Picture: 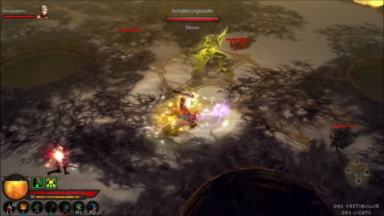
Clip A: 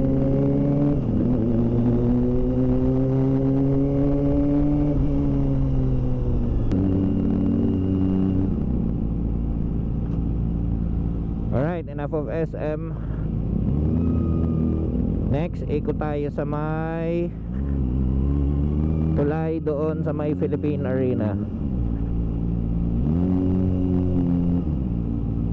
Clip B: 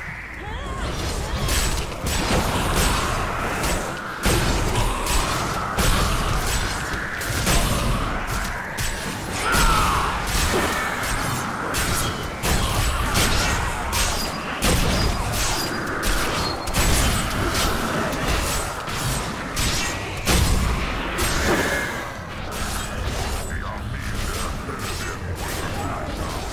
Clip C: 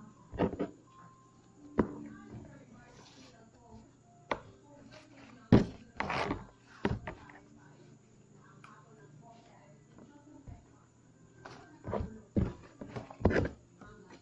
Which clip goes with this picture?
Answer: B